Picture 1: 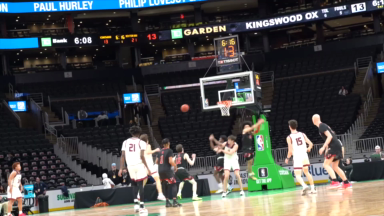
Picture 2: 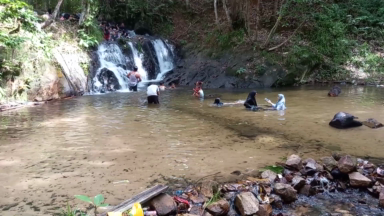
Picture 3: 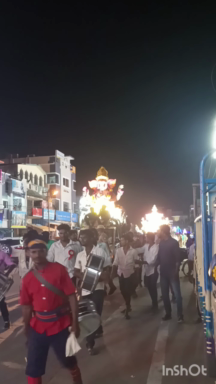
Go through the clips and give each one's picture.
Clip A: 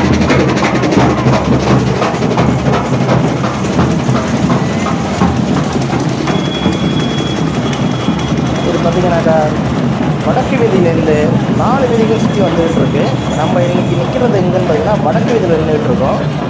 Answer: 3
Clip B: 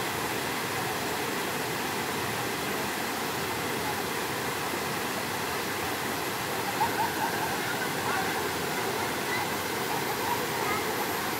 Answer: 2